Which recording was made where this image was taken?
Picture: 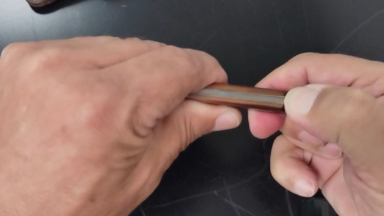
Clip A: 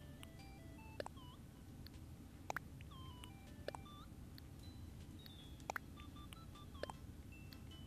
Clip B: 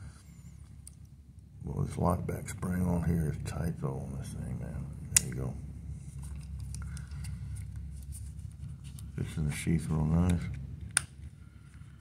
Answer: B